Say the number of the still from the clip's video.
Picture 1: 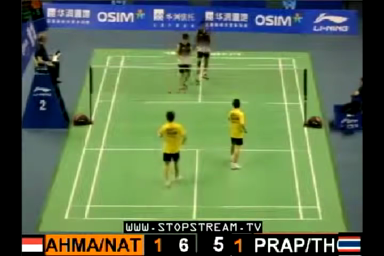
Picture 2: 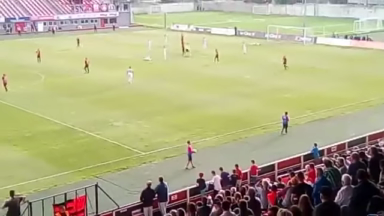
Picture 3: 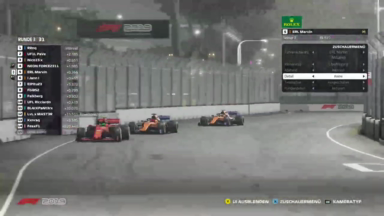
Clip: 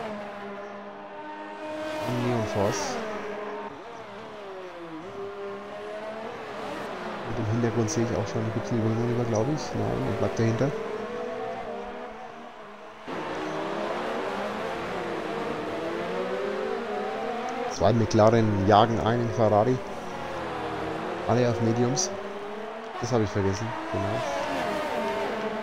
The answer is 3